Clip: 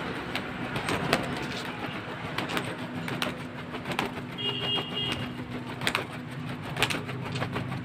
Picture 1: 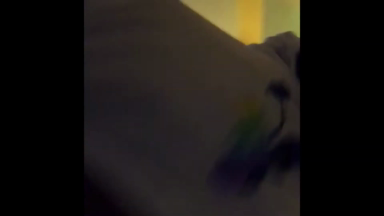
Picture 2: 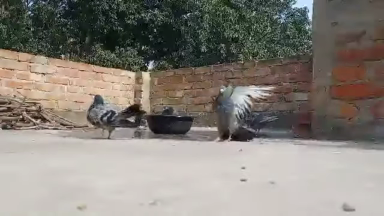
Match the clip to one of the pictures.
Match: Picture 2